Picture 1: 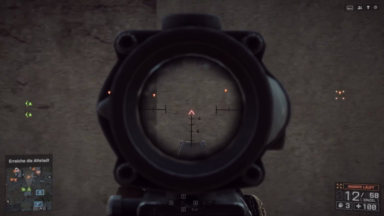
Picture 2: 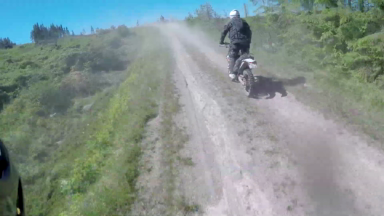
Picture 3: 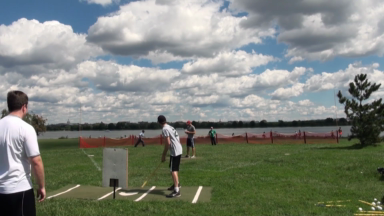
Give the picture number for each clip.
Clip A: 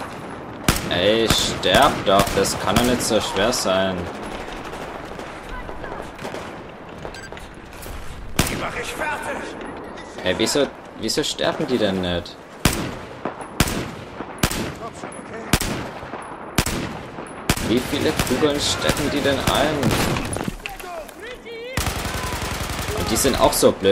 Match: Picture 1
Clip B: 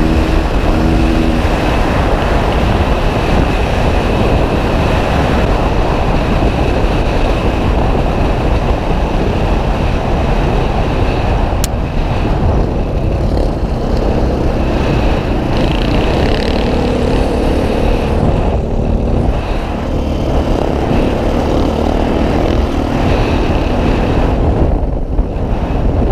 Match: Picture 2